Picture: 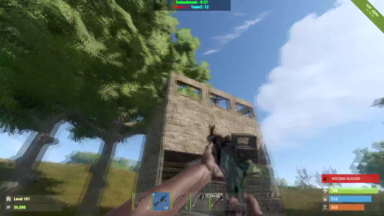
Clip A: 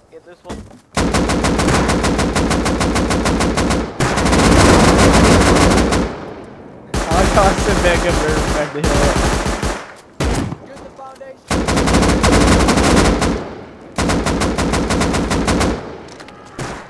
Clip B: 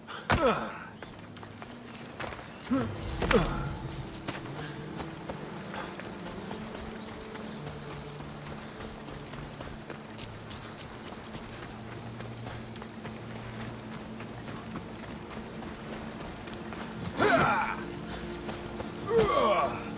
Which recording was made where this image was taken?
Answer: A